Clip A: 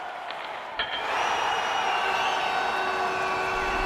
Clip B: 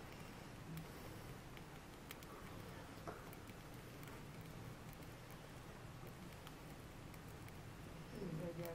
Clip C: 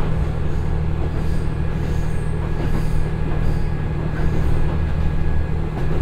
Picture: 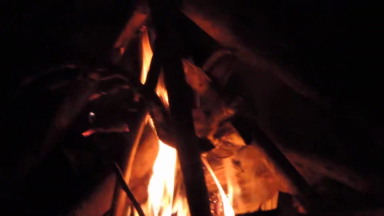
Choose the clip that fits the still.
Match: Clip B